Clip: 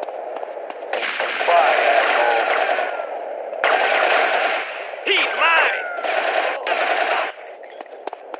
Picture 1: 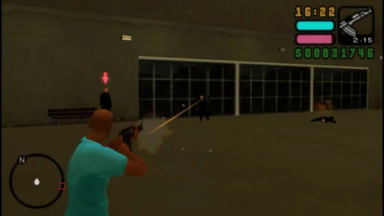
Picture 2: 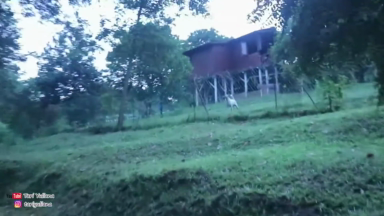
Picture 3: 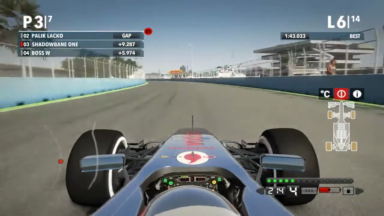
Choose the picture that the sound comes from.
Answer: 1